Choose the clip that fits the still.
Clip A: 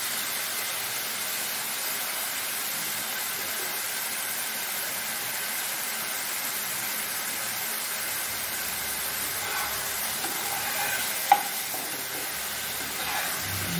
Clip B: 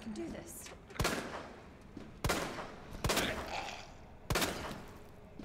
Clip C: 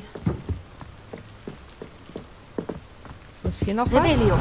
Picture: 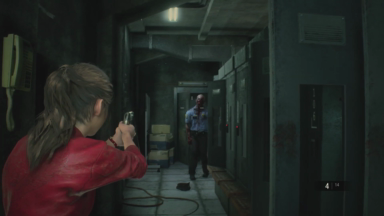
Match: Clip B